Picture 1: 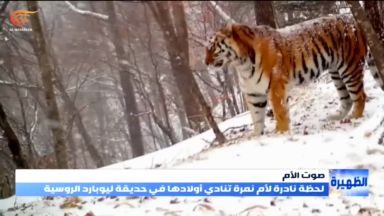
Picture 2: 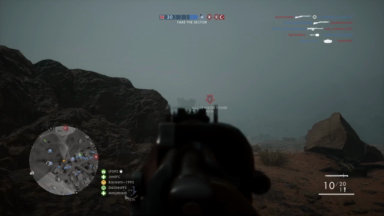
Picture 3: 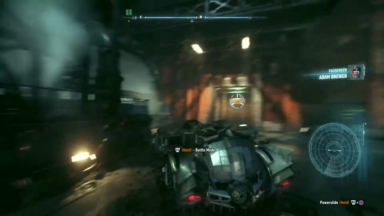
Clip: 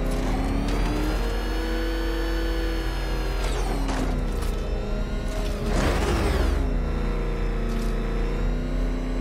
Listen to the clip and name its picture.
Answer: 3